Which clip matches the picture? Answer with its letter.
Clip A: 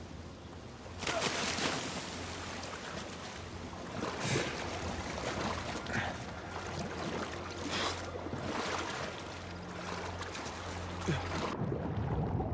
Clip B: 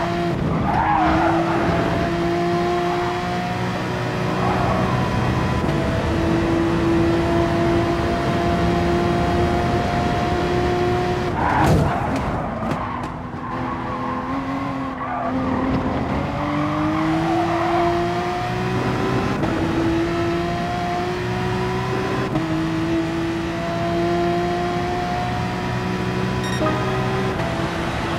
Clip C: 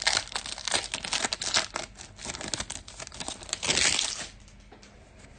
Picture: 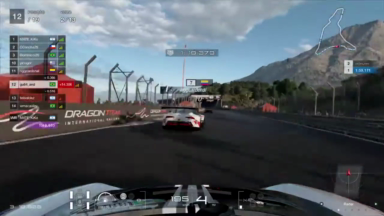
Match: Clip B